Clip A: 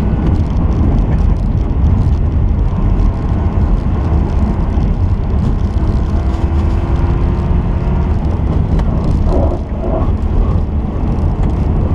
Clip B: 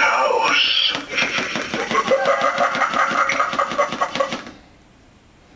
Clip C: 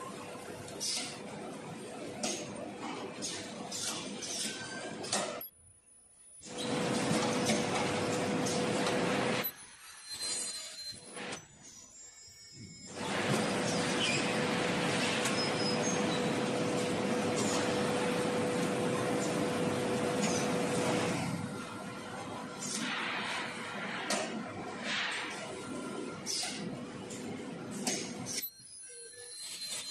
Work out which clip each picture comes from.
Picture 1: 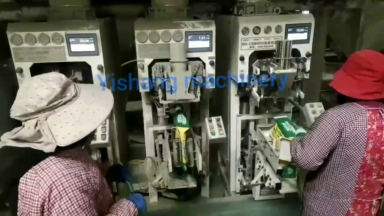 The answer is C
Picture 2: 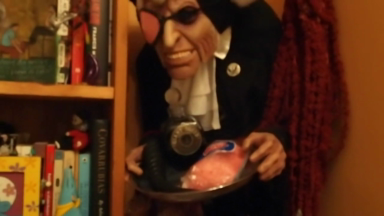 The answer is B